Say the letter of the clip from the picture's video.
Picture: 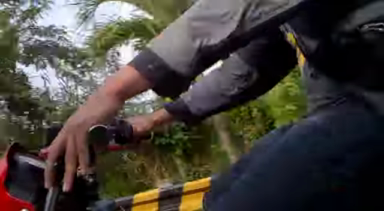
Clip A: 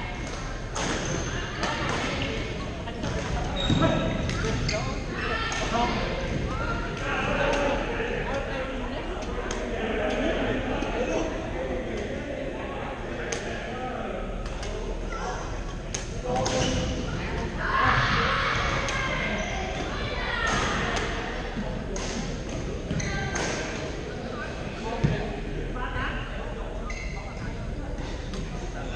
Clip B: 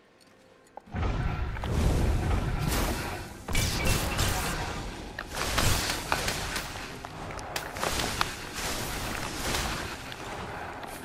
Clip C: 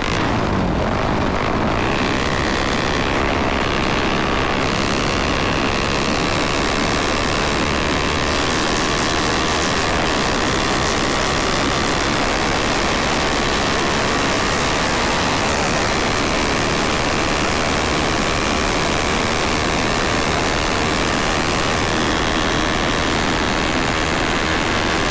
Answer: C